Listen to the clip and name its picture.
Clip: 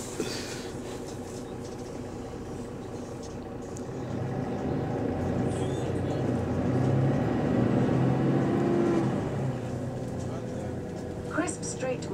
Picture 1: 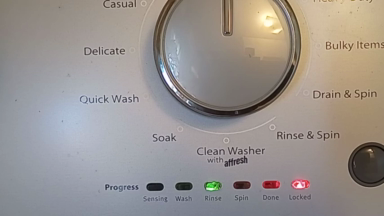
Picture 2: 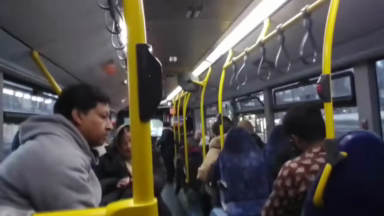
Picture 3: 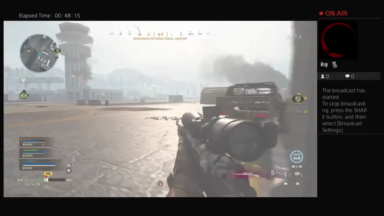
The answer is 2